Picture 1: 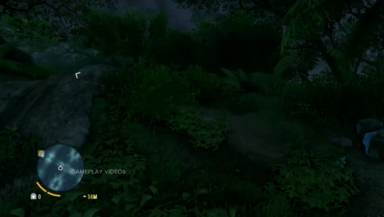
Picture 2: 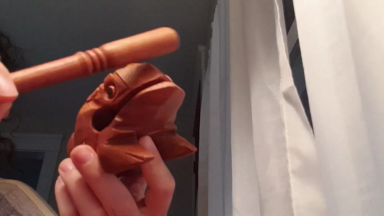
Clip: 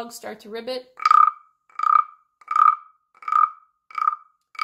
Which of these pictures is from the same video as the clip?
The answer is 2